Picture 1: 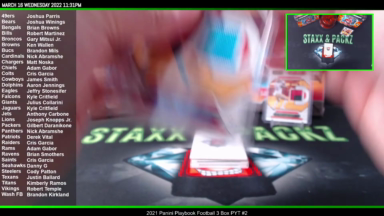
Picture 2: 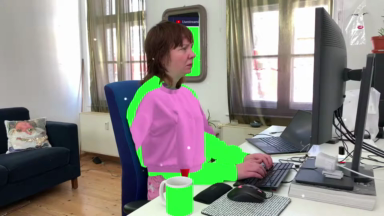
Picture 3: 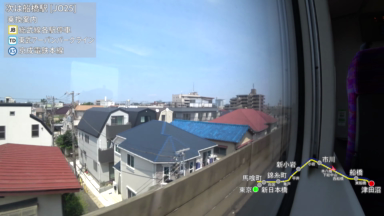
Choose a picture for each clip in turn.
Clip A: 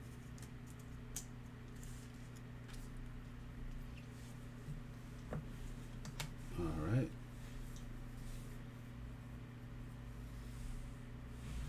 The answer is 1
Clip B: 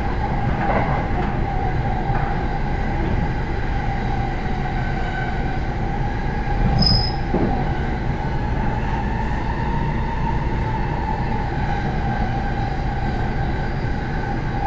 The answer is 3